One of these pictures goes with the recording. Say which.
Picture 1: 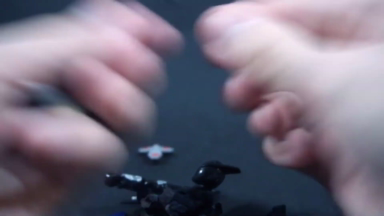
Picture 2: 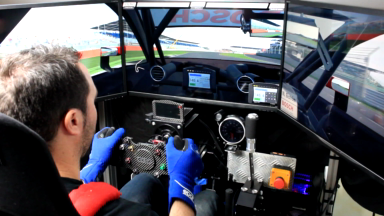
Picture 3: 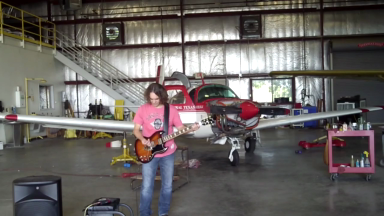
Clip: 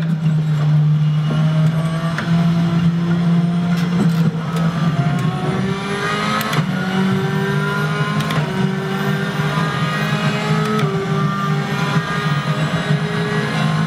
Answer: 2